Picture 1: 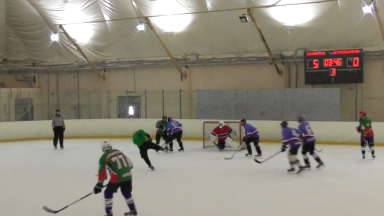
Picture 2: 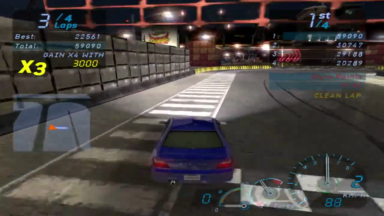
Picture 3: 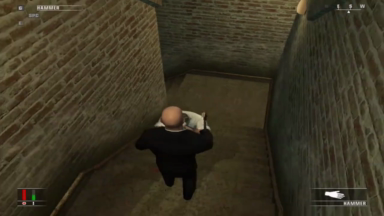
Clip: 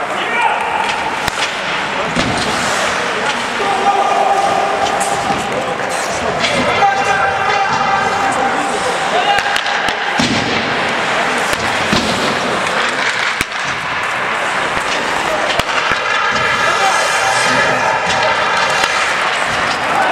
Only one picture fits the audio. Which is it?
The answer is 1